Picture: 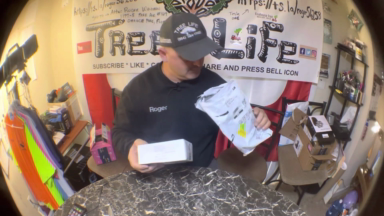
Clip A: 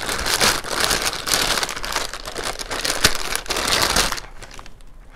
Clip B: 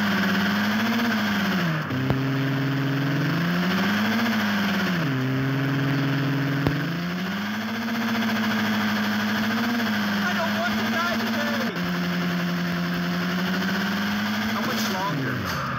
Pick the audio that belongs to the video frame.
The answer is A